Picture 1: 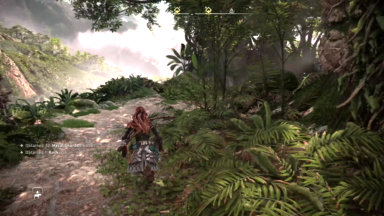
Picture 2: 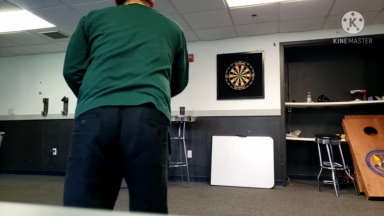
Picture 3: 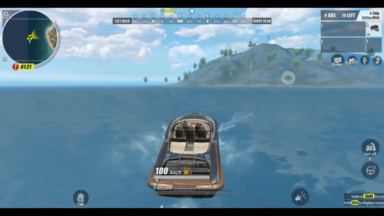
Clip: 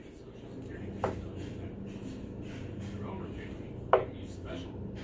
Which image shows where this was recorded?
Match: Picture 2